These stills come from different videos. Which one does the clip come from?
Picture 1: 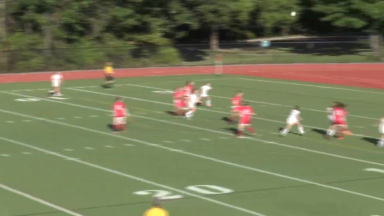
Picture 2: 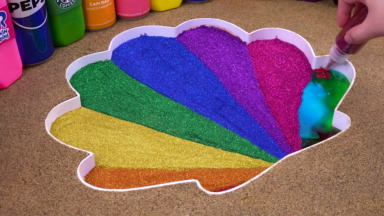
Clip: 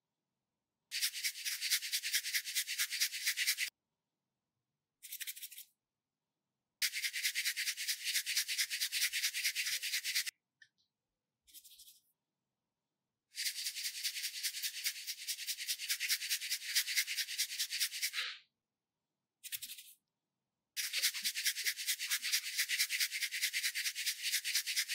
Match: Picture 2